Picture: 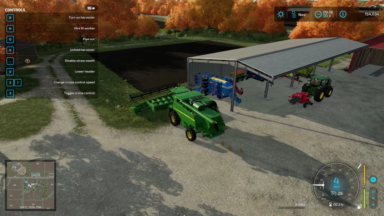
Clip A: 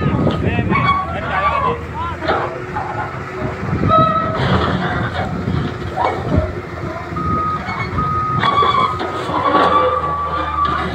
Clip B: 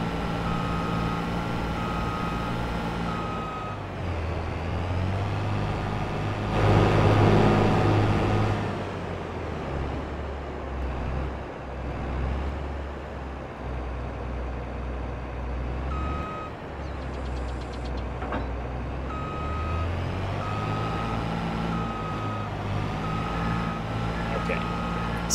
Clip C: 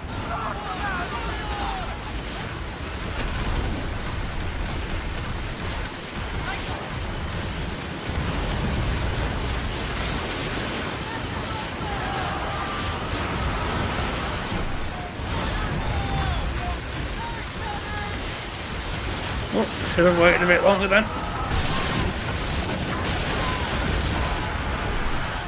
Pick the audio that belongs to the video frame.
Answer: B